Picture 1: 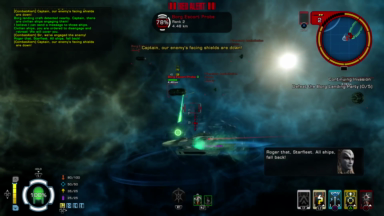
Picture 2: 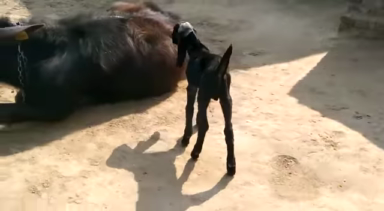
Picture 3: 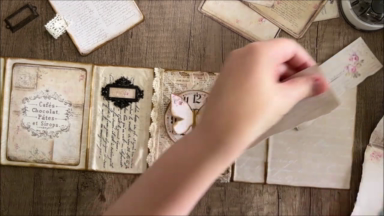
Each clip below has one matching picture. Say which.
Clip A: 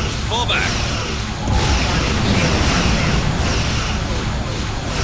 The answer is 1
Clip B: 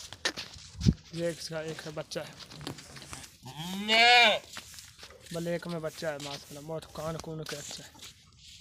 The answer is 2